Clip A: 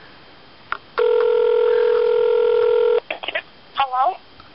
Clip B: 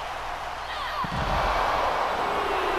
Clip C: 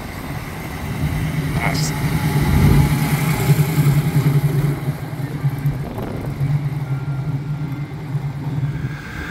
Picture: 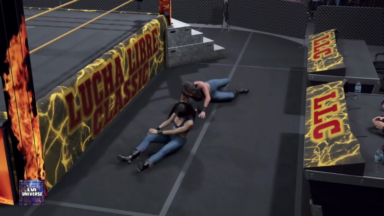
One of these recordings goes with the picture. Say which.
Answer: B